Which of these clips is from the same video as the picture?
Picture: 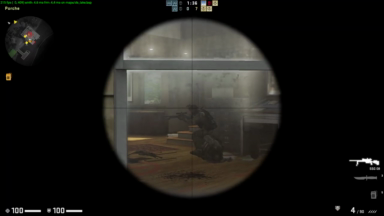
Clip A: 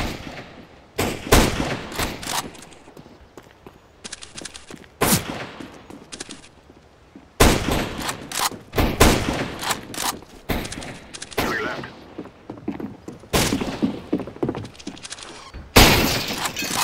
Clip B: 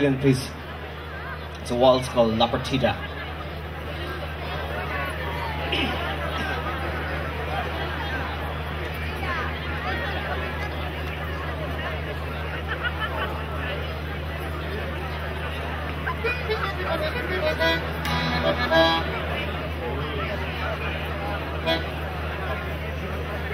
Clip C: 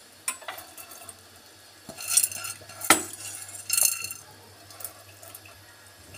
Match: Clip A